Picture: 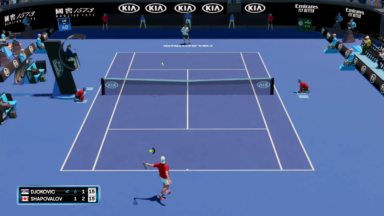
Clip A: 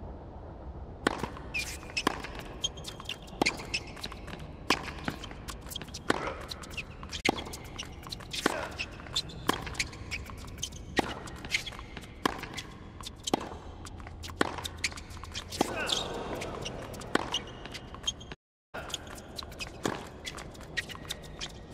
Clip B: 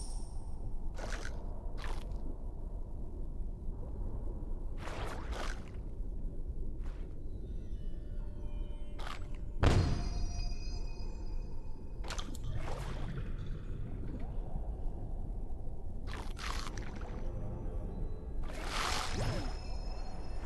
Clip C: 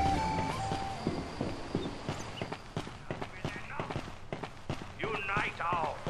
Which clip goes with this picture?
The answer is A